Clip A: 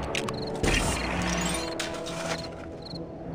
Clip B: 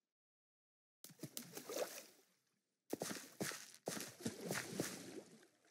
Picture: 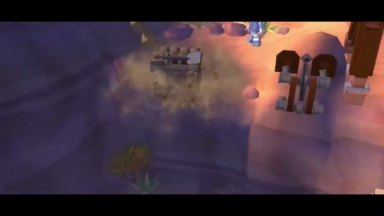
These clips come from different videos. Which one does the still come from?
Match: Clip A